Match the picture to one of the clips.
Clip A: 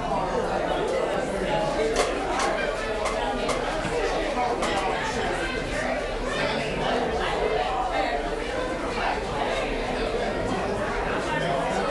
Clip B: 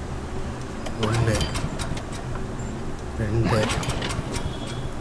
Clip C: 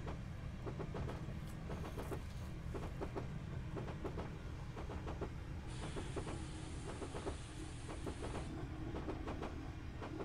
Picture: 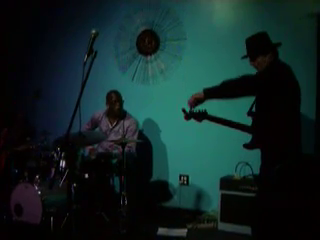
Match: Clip A